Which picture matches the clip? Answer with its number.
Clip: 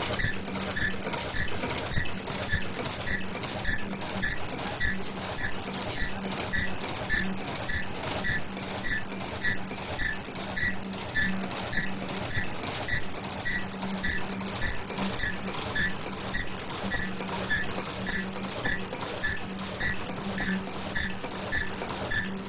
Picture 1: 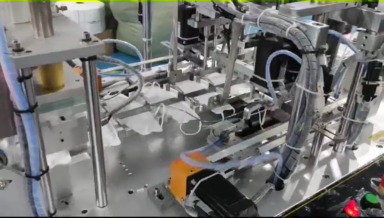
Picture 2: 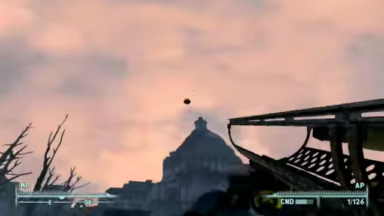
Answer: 1